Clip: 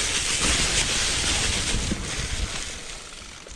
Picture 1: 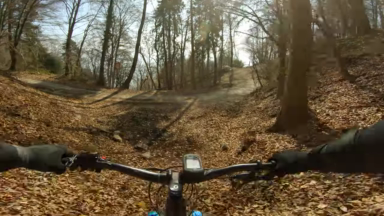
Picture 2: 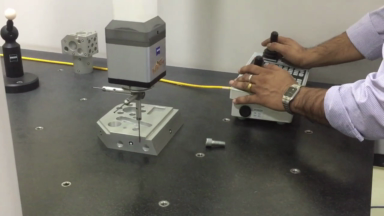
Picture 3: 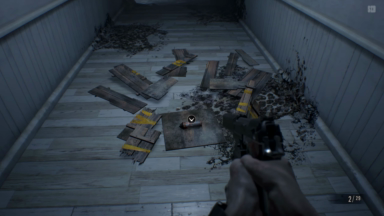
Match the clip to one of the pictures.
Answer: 1